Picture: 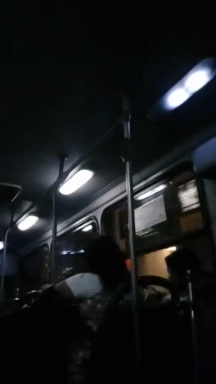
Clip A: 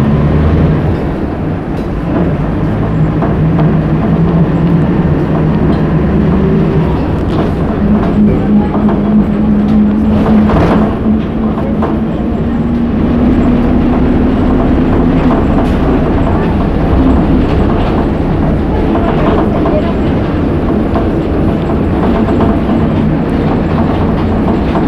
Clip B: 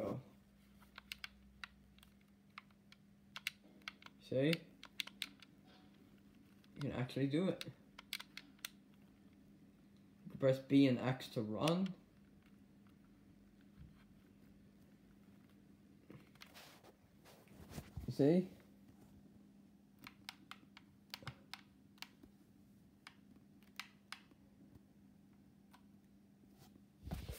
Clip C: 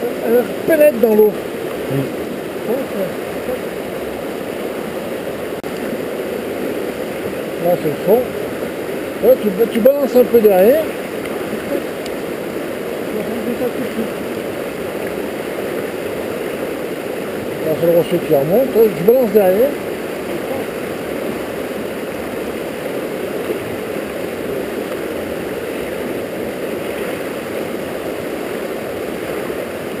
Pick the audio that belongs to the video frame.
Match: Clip A